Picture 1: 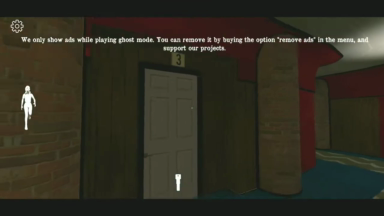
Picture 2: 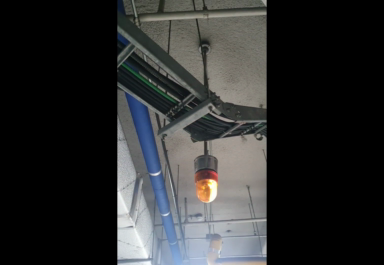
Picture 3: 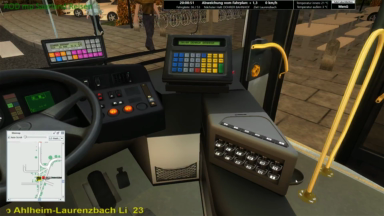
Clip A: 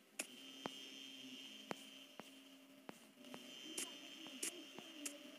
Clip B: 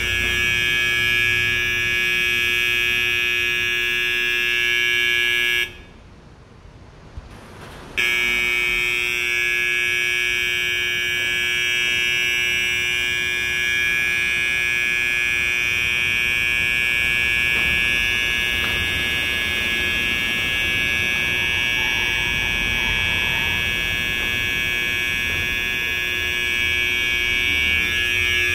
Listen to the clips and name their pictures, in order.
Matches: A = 1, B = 2